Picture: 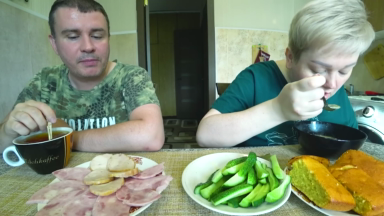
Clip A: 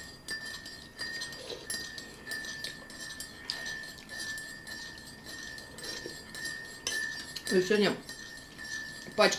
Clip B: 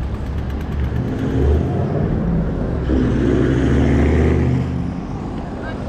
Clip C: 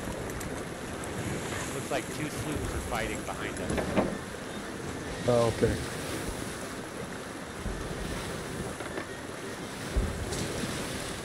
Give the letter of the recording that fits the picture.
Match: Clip A